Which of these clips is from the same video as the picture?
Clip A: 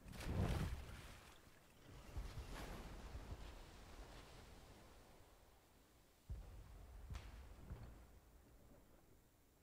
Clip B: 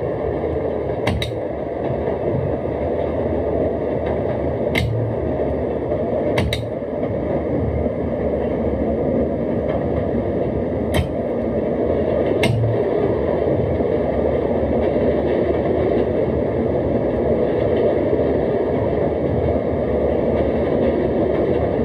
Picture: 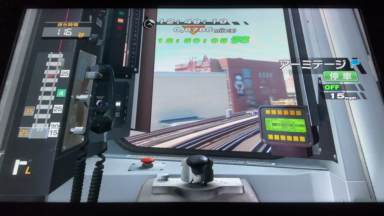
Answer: B